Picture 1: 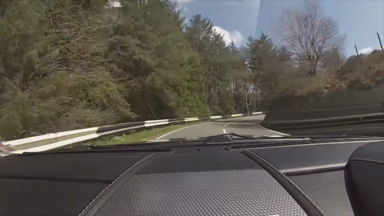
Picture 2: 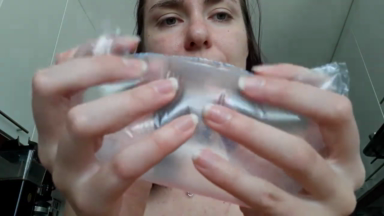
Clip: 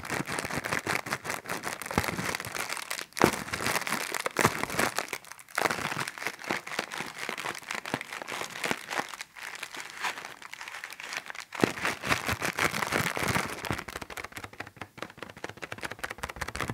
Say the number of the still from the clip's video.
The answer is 2